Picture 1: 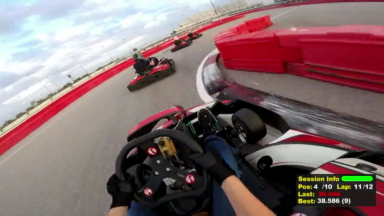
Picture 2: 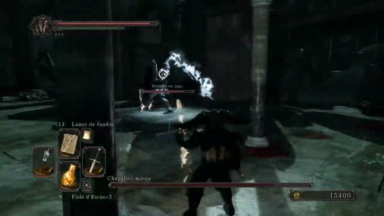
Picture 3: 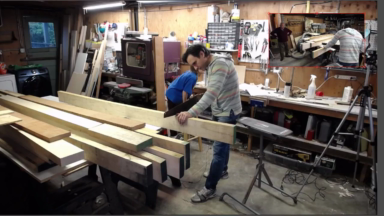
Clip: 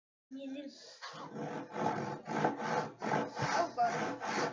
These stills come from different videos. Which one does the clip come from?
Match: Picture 3